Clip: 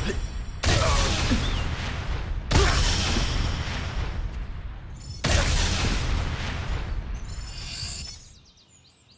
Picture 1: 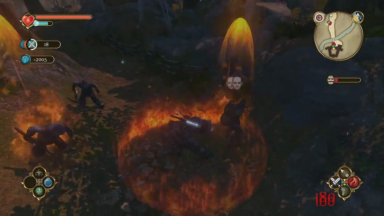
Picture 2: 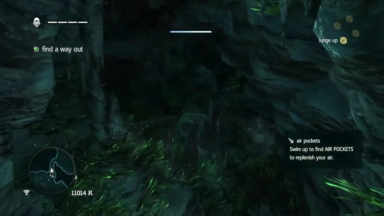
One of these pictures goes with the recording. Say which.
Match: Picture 1